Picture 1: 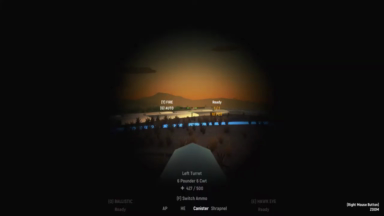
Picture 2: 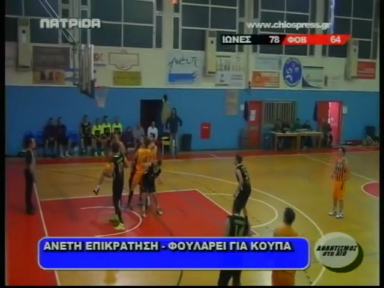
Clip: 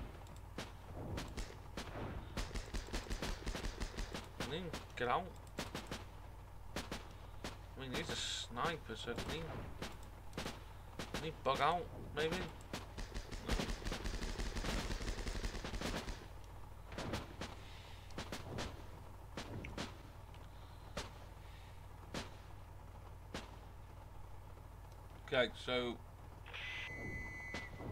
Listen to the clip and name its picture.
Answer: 1